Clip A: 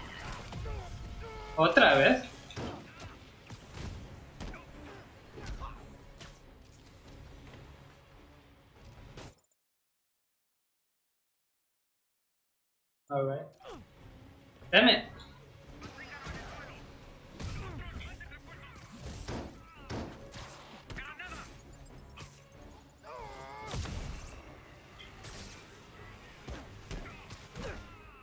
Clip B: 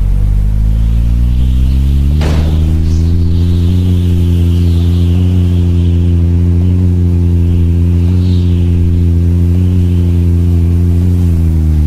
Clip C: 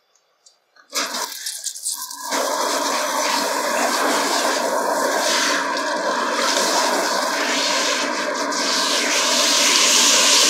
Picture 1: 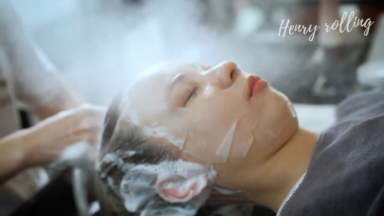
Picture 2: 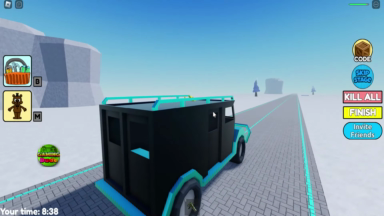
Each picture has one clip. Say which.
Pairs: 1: C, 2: B